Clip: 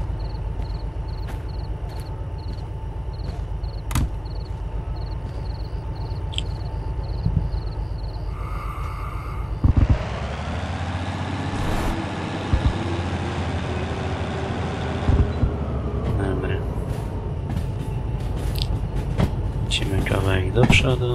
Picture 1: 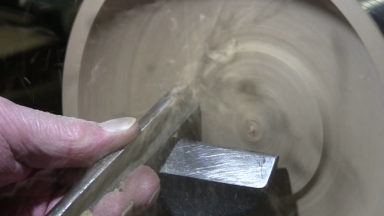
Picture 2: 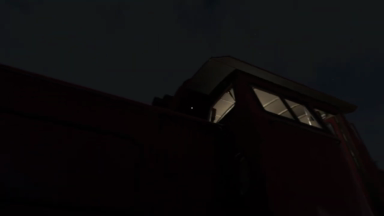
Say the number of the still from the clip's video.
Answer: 2